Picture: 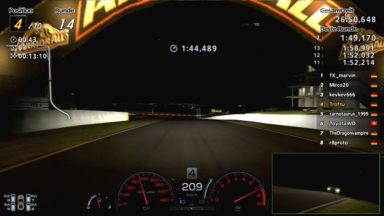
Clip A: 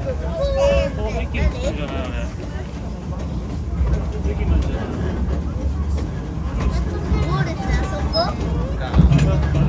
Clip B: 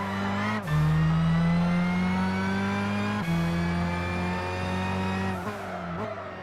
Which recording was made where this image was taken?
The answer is B